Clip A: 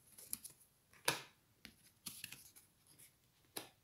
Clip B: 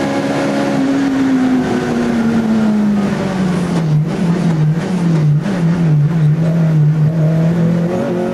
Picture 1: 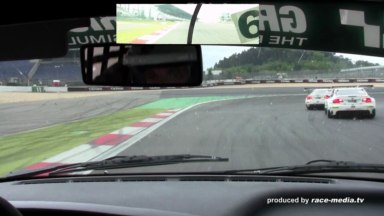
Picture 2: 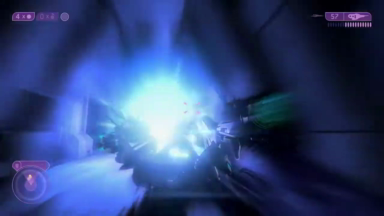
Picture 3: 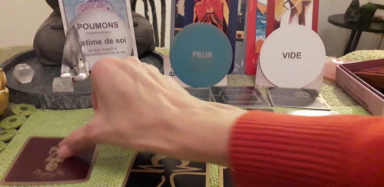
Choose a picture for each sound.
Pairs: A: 3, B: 1